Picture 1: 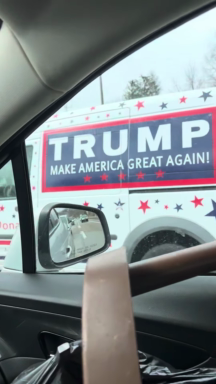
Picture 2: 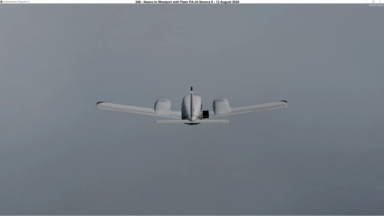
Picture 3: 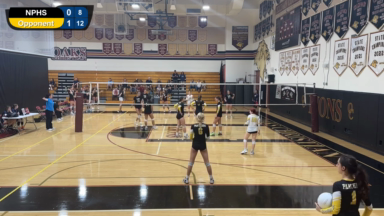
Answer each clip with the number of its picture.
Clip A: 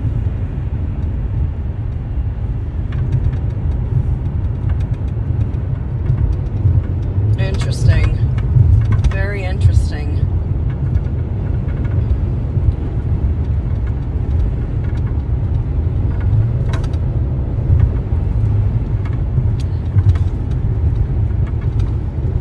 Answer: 1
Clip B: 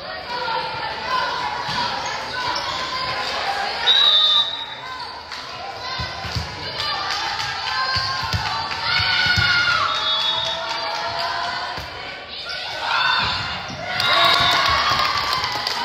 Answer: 3